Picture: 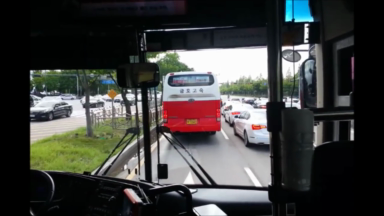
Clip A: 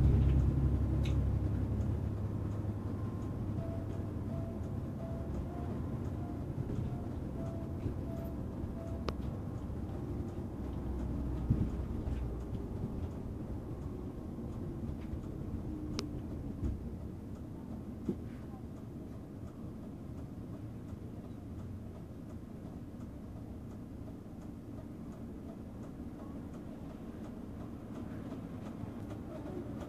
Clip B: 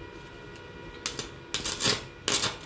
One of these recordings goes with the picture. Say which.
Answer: A